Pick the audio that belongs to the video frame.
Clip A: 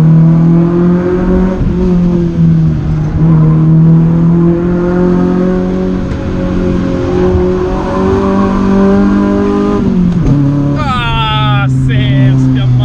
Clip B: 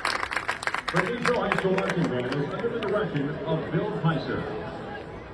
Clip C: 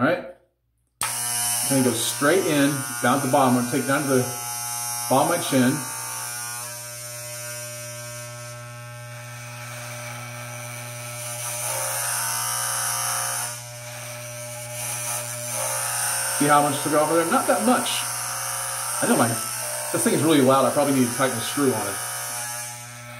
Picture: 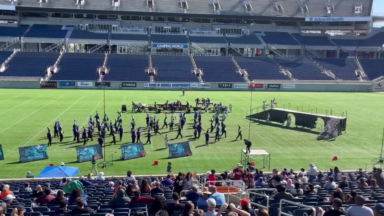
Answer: B